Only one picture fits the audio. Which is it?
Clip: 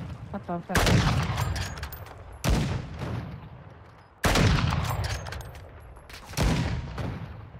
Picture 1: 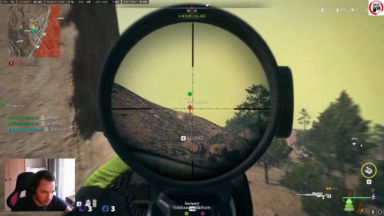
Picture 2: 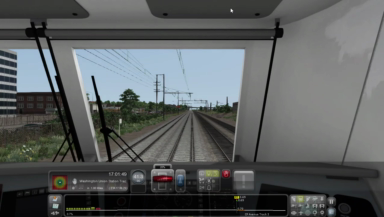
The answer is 1